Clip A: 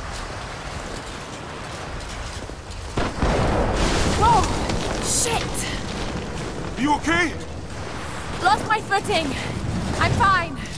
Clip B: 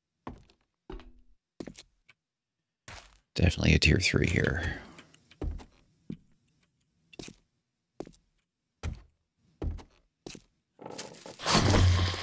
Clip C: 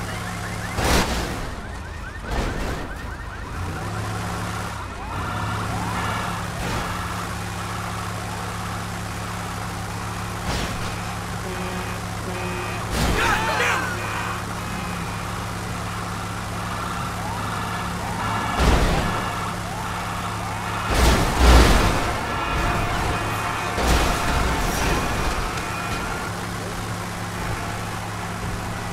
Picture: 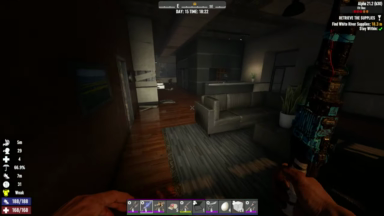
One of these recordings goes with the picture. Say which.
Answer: B